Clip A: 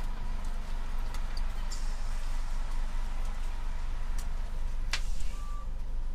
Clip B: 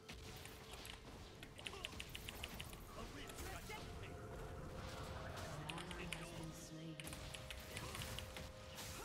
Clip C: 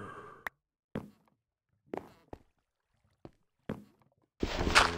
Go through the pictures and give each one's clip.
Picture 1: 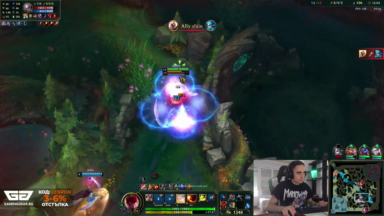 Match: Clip B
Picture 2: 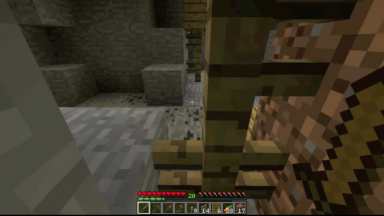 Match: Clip C